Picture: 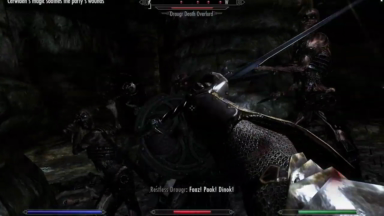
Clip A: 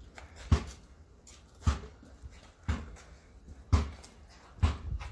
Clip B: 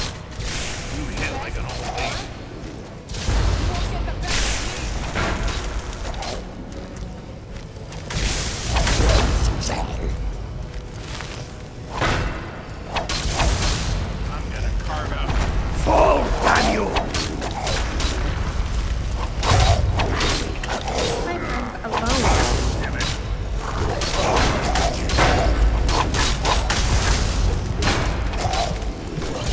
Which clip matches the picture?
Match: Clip B